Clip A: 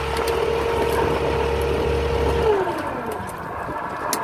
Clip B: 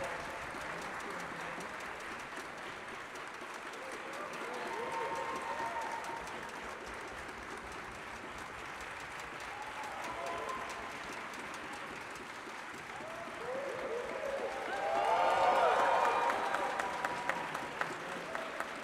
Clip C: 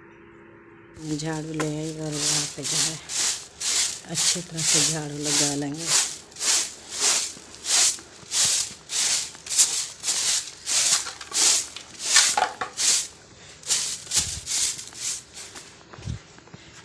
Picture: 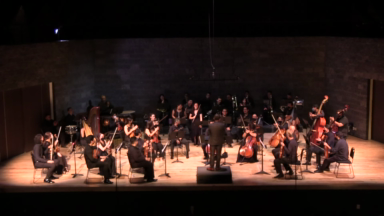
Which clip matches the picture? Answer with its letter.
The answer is B